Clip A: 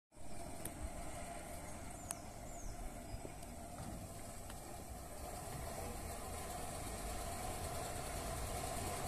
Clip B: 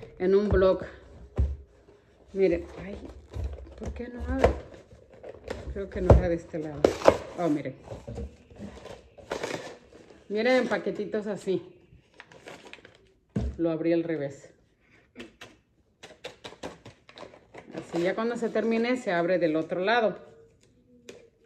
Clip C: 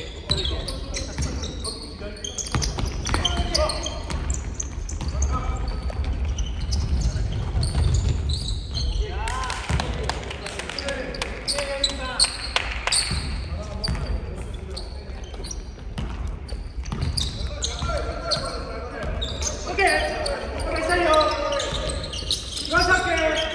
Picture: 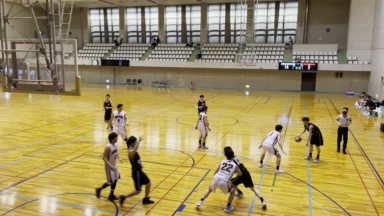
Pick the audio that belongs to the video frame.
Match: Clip C